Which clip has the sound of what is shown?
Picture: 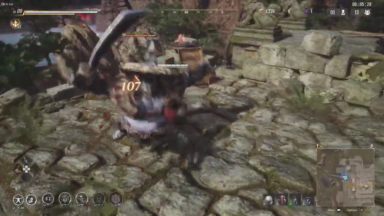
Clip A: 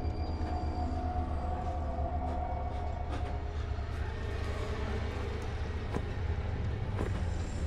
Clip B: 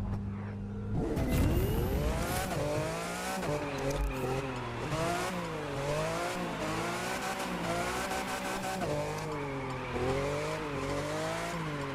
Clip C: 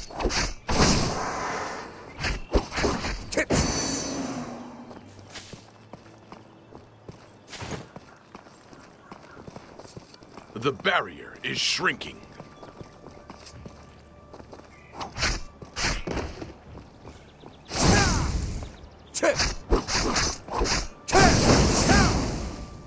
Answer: C